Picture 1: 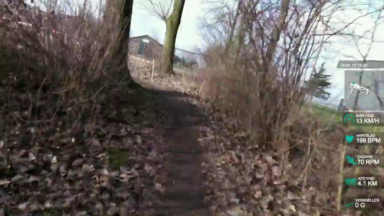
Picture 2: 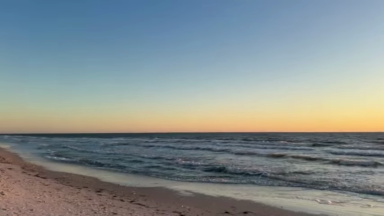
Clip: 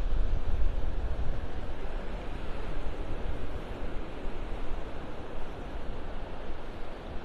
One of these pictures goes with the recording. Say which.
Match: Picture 2